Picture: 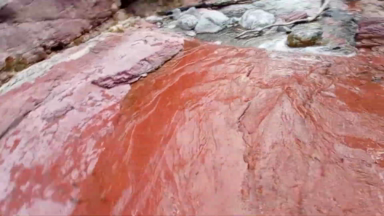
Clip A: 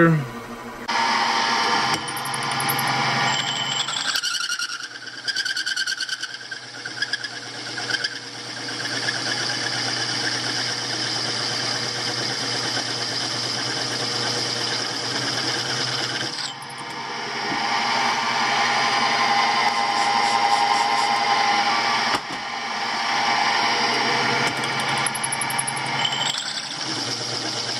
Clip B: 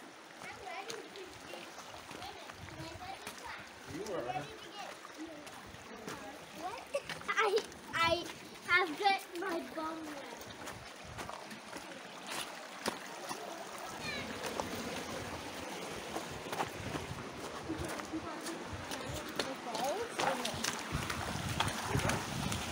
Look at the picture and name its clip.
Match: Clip B